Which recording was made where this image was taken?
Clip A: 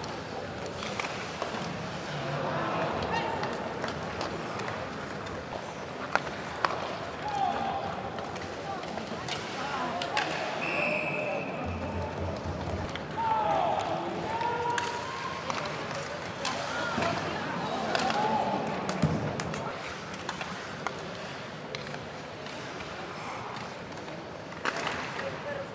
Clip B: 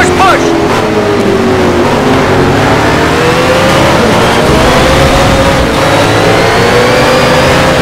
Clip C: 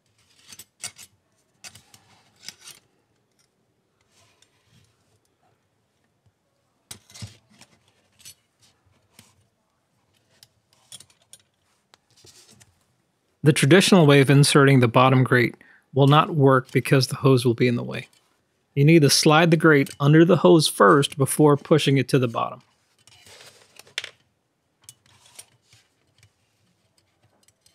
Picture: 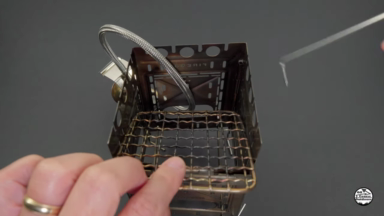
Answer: C